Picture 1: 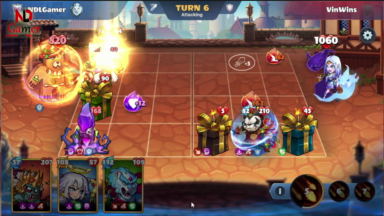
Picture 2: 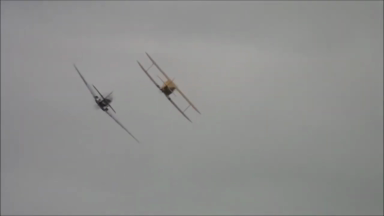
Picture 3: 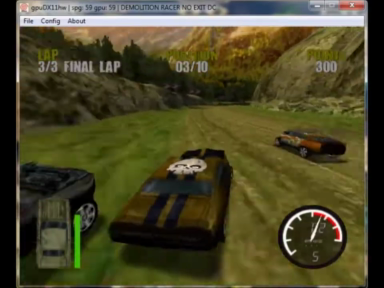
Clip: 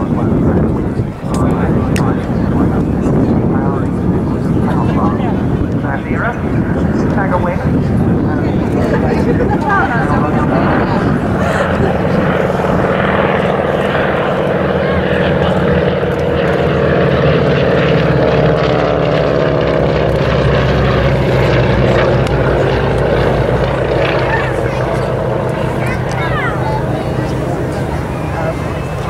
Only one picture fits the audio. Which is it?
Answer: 2